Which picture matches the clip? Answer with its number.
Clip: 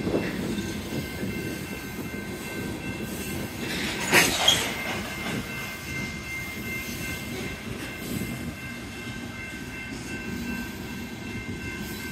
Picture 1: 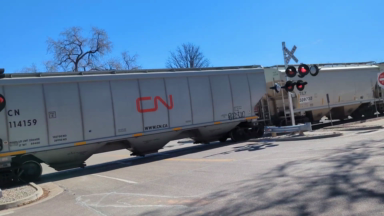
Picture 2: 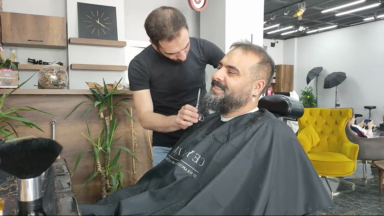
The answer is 1